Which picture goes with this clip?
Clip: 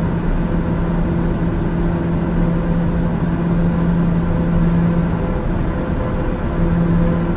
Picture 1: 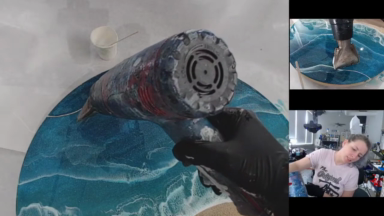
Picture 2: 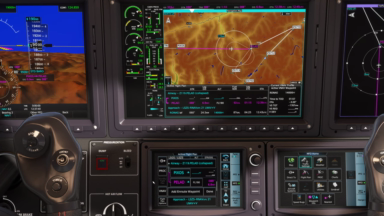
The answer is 2